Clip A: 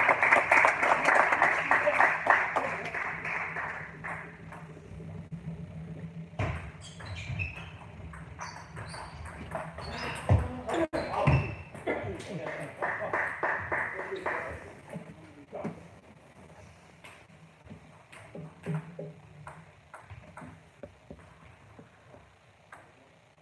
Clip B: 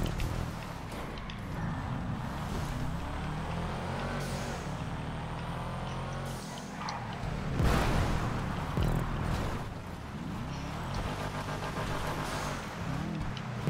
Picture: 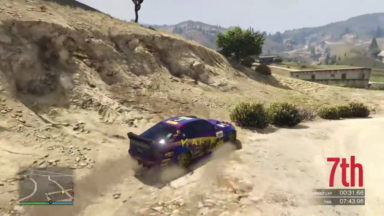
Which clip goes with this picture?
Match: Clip B